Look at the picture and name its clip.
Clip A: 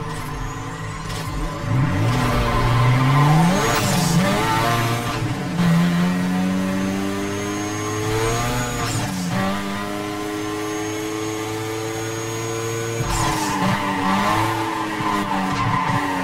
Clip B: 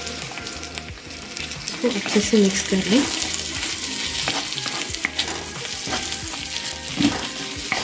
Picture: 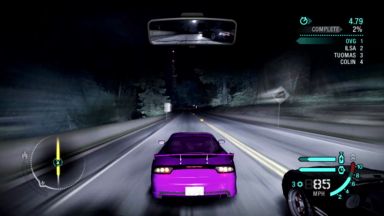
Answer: A